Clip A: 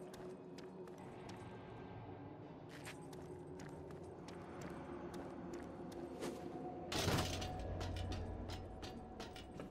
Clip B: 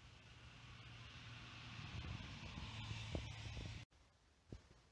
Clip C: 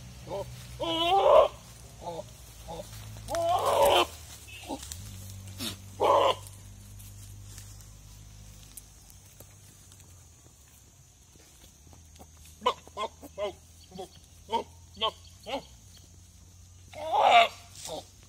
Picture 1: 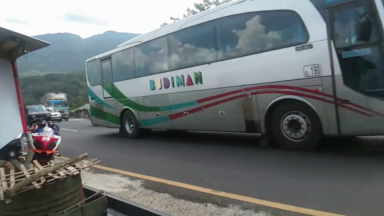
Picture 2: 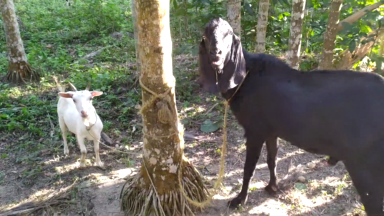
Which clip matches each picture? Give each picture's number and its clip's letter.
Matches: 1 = B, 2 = C